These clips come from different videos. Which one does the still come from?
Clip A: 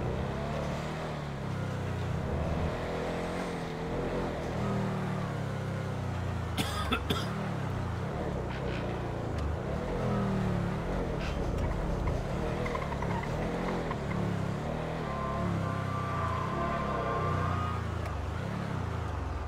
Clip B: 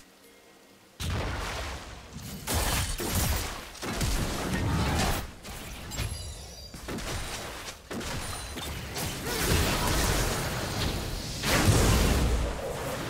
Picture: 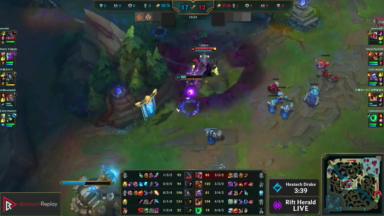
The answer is B